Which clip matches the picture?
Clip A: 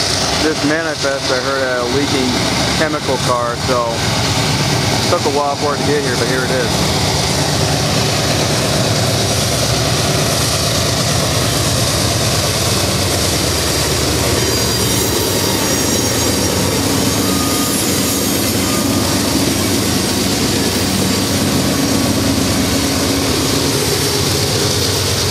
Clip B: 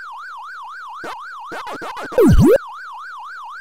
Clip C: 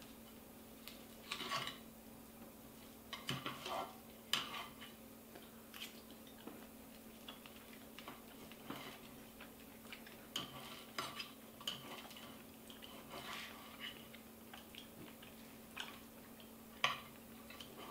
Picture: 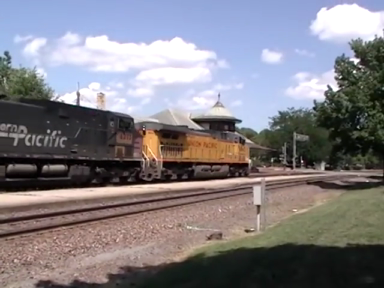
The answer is A